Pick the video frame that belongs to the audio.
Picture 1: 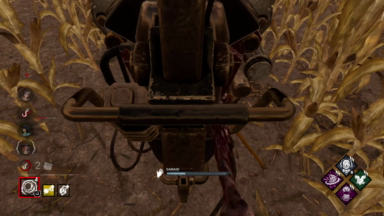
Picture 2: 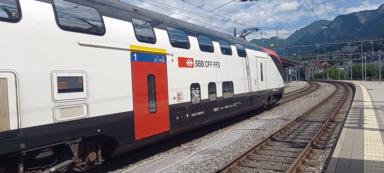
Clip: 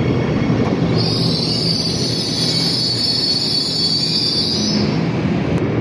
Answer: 2